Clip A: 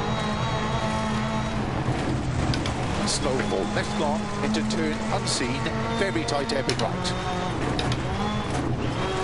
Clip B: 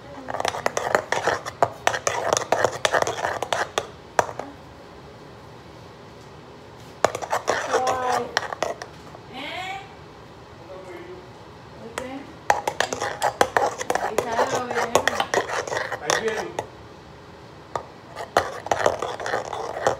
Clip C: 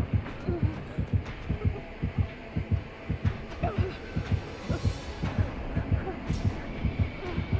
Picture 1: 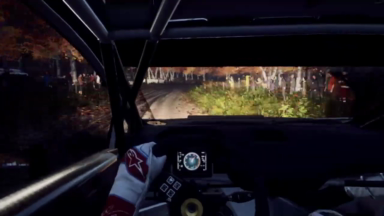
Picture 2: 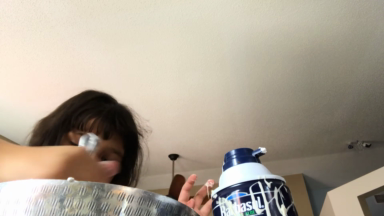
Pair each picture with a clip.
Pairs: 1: A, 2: B